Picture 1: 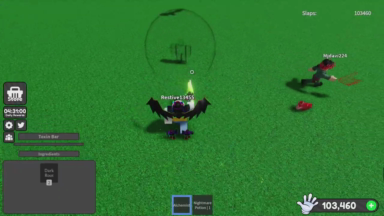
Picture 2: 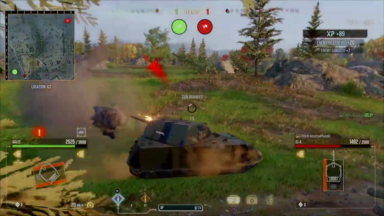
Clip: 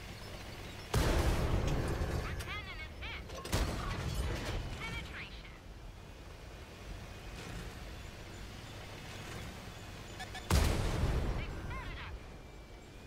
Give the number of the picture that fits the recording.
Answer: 2